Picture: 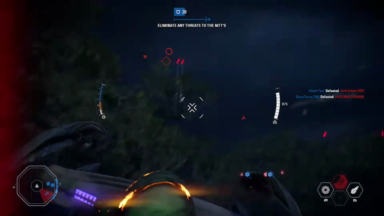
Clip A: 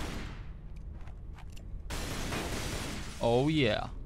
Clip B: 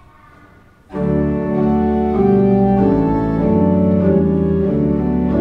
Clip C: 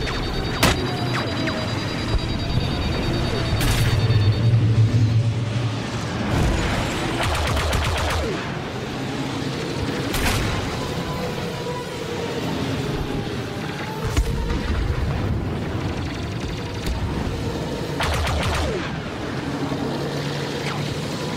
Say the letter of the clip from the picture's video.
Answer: C